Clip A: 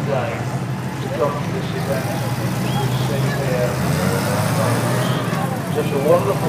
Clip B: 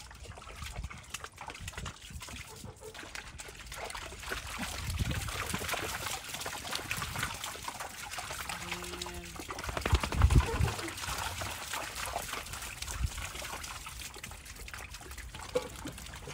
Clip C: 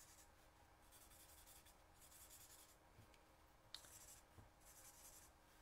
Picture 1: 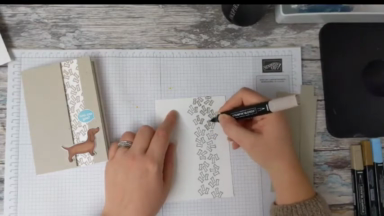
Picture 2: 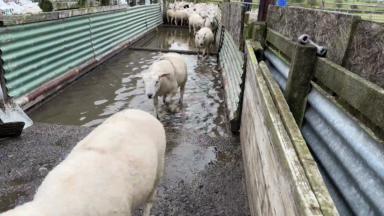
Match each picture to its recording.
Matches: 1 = C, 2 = B